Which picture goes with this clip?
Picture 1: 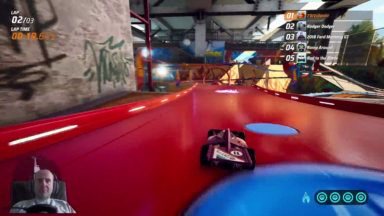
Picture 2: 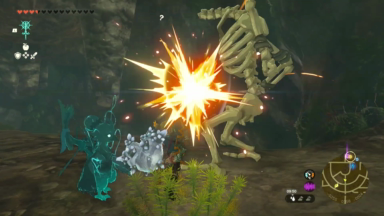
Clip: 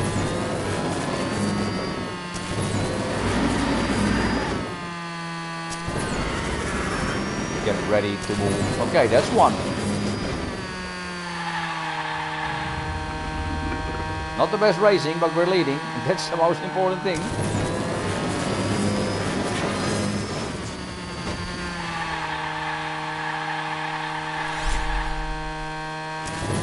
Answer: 1